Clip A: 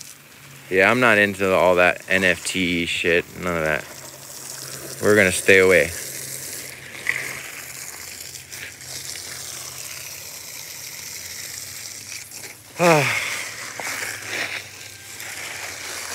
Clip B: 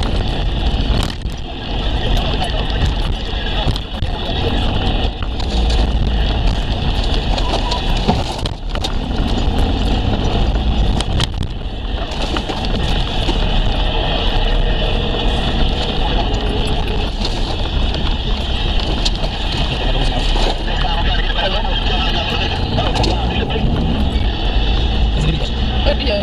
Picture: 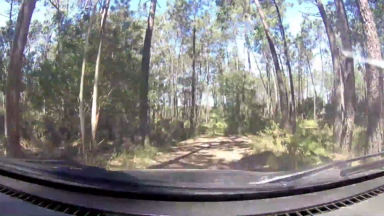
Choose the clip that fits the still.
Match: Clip B